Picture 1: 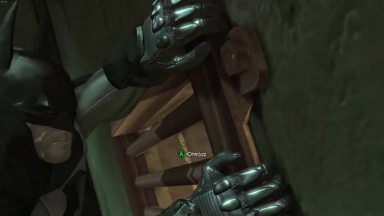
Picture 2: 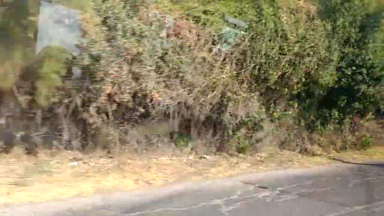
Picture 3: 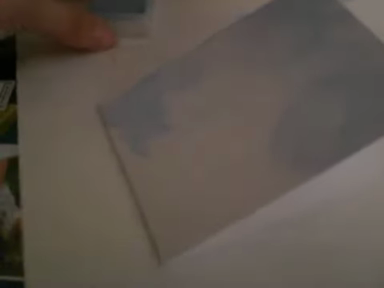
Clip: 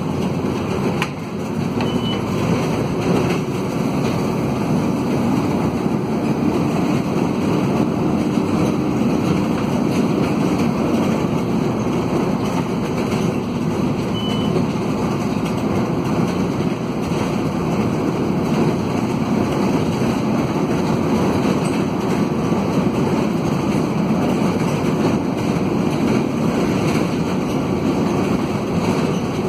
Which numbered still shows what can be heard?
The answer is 2